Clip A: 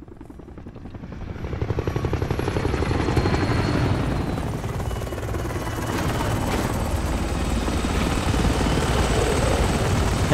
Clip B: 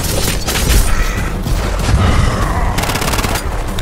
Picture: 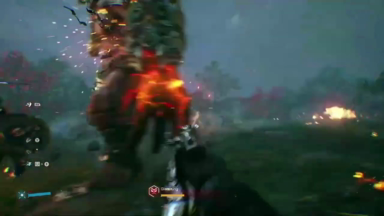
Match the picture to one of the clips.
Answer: B